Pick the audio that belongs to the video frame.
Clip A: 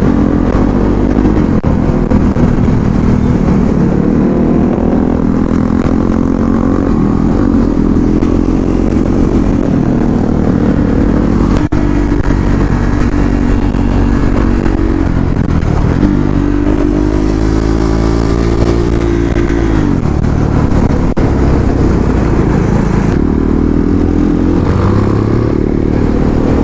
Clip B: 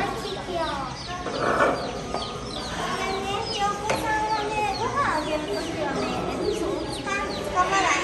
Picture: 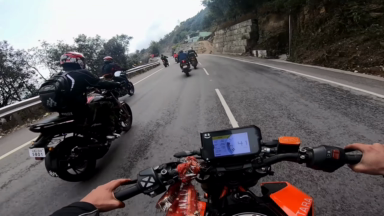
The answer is A